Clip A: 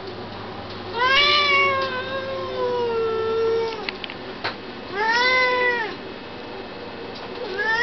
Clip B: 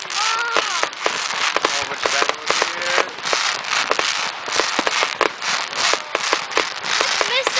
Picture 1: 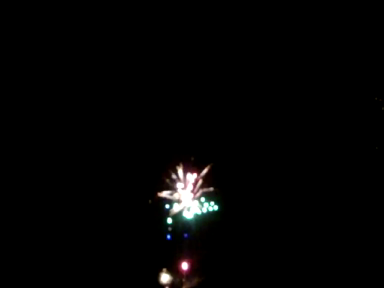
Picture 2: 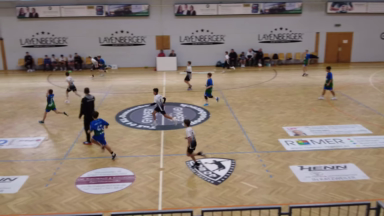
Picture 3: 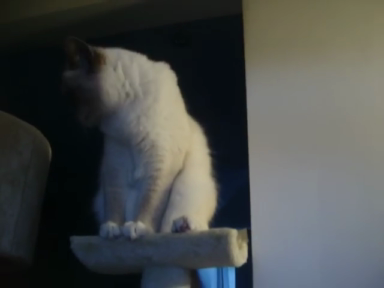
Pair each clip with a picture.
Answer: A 3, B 1